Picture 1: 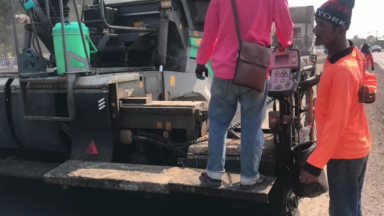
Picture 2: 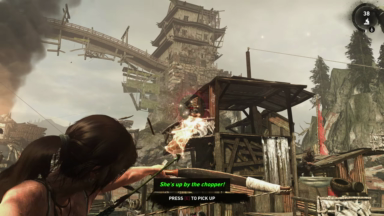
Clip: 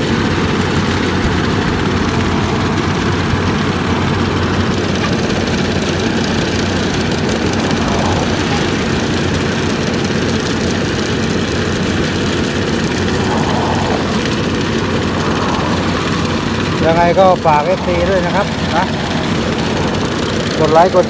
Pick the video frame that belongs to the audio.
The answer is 1